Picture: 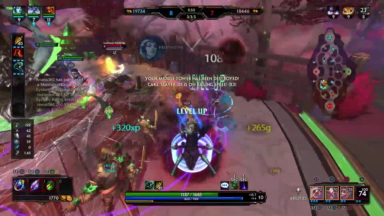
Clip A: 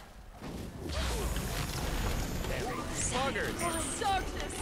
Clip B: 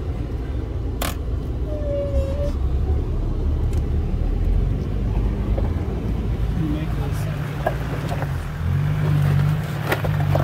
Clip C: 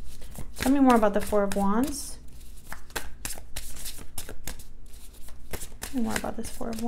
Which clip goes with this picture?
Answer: A